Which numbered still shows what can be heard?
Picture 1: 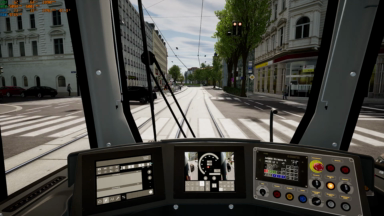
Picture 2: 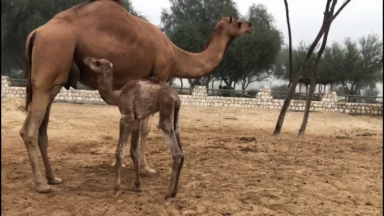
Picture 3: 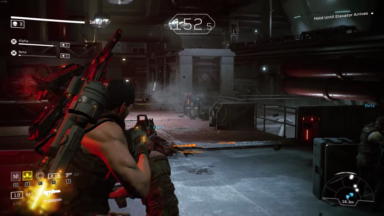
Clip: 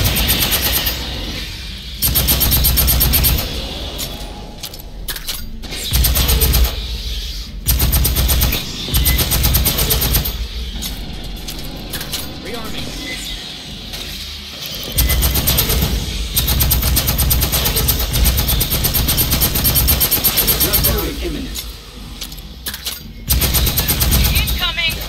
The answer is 3